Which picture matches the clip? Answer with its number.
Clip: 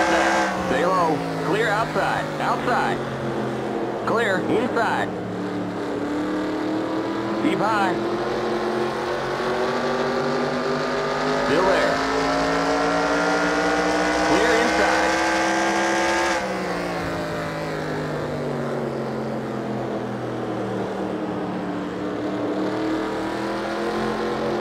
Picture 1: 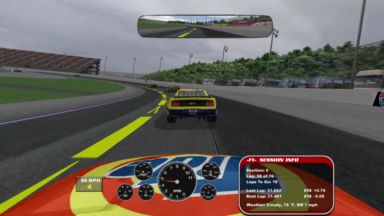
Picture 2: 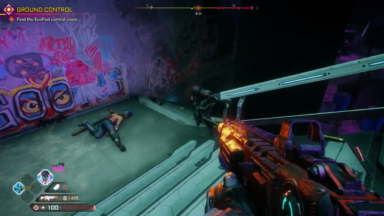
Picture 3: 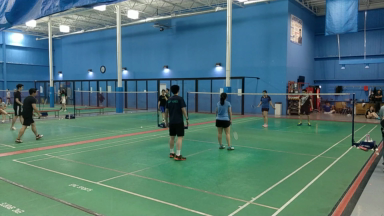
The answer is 1